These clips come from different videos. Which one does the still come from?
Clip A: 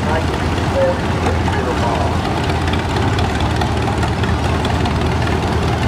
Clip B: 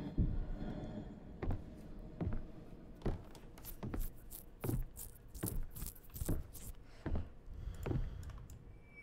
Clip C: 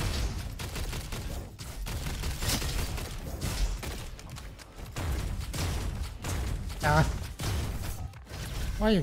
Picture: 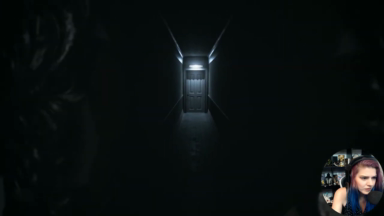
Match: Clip B